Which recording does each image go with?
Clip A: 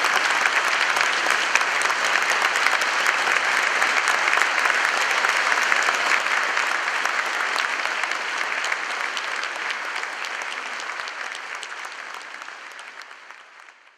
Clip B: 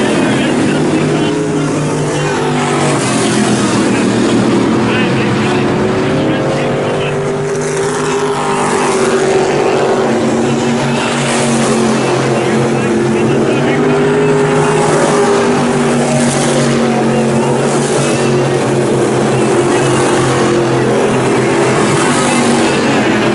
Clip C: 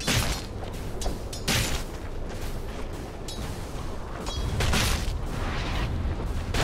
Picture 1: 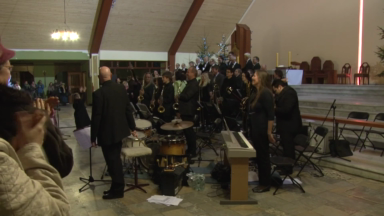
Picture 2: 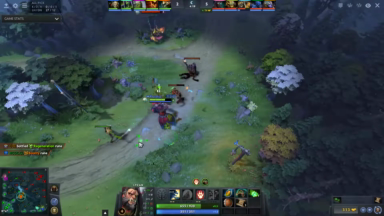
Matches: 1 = A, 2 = C